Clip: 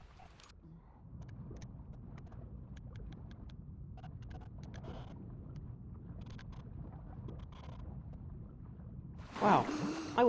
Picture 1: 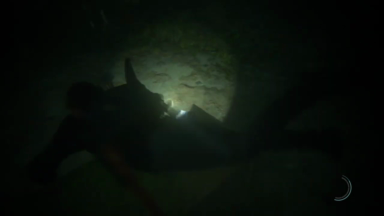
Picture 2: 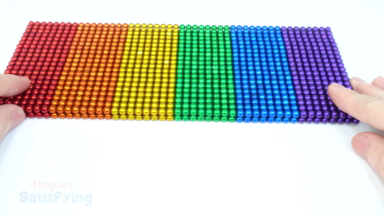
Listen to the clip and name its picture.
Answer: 1